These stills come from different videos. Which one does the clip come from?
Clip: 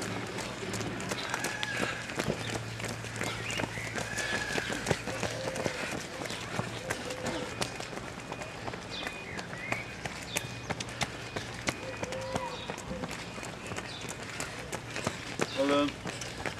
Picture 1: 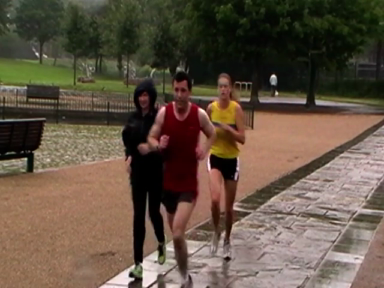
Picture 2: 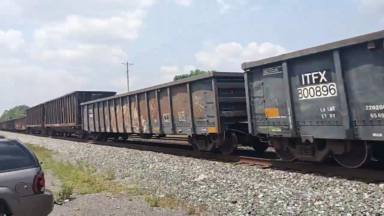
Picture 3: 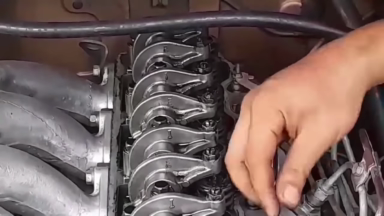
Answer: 1